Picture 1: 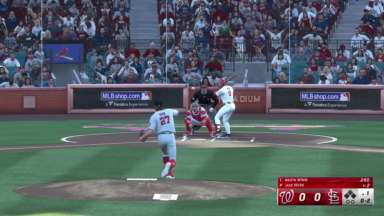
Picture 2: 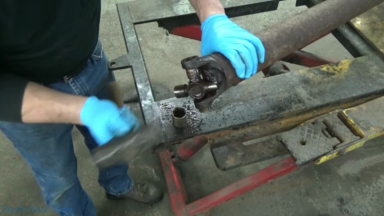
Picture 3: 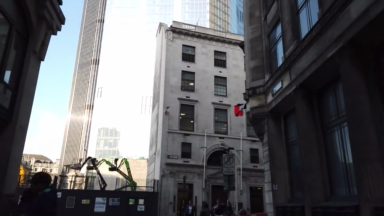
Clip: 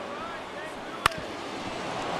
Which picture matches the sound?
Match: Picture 1